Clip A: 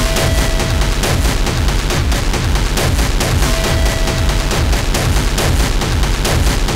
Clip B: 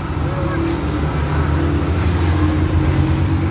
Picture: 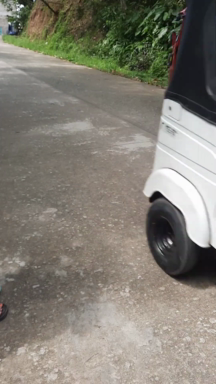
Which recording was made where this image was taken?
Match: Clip B